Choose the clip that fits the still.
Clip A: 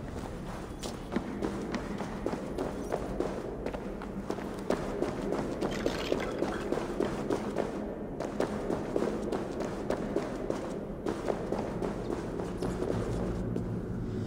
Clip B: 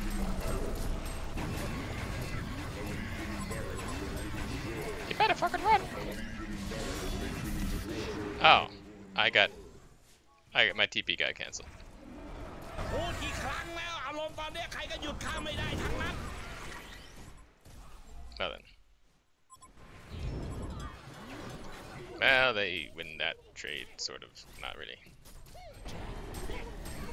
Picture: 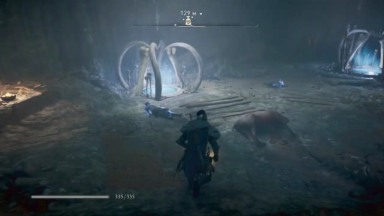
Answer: A